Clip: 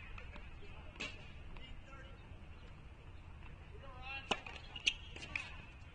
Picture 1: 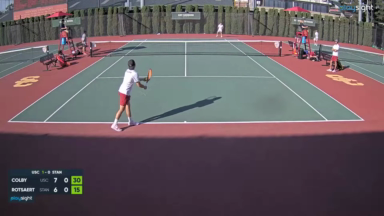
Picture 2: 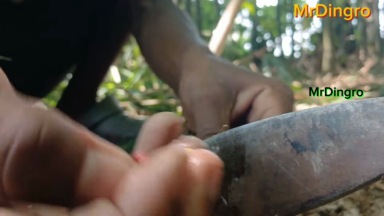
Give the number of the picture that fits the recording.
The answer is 1